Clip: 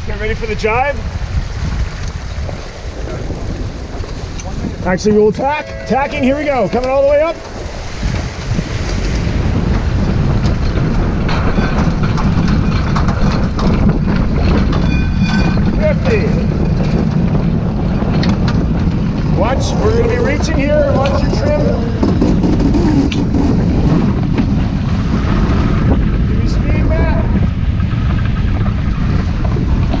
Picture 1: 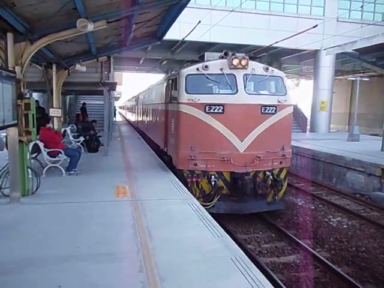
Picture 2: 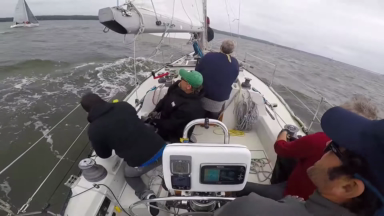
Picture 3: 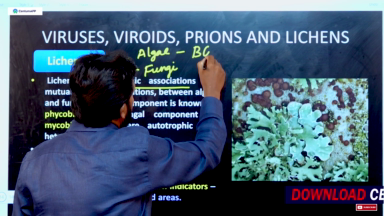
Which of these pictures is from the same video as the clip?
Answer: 2